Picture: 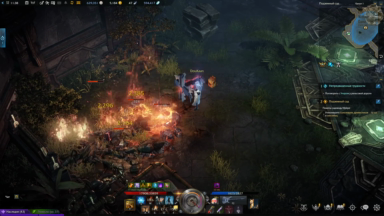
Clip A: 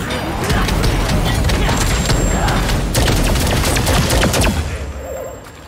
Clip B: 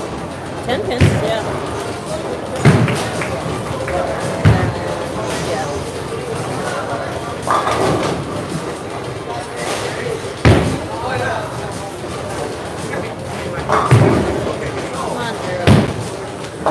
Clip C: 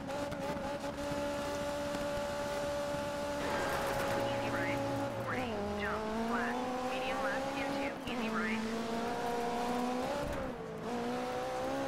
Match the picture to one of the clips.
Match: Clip A